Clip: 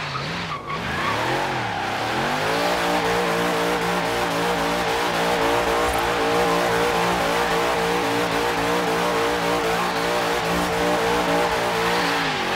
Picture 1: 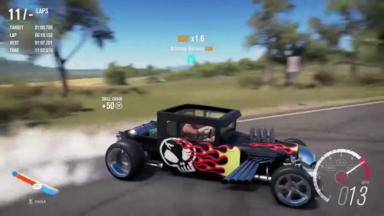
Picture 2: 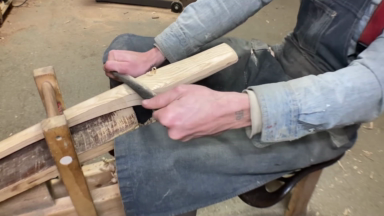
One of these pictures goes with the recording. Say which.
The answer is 1